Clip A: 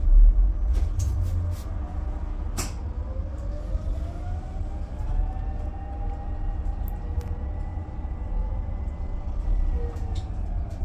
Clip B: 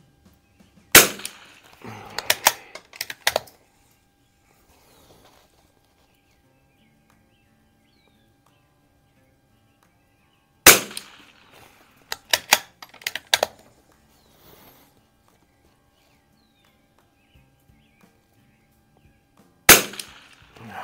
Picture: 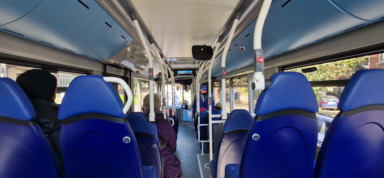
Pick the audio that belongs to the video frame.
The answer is A